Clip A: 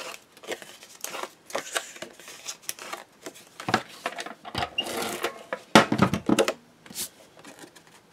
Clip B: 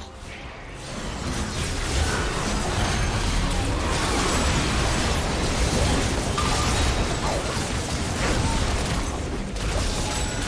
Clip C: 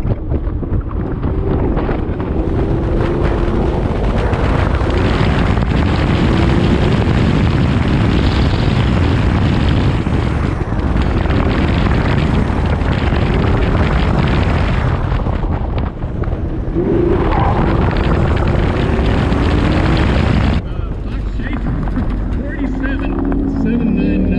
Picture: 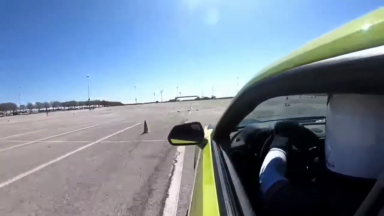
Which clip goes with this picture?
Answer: C